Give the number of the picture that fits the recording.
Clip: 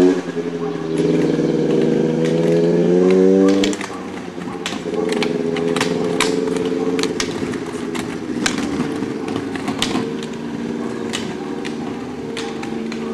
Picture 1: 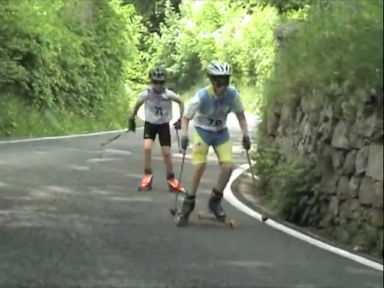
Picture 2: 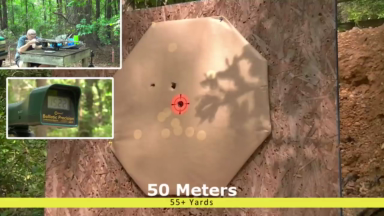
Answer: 1